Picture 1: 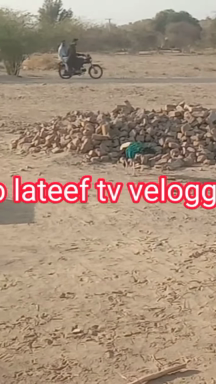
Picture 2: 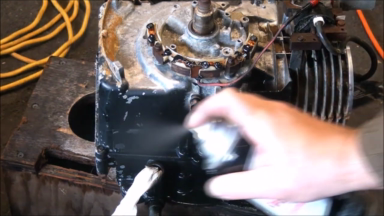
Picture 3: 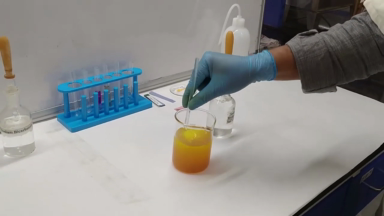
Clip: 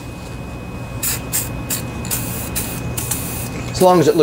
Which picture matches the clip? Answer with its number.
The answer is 2